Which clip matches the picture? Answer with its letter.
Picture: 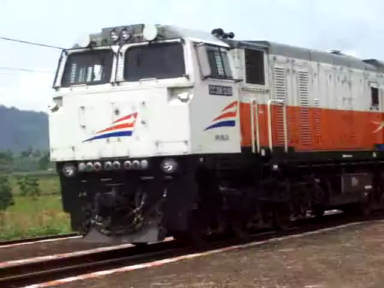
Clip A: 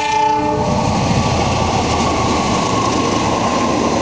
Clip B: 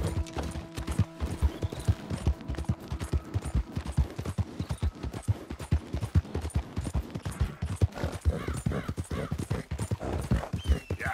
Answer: A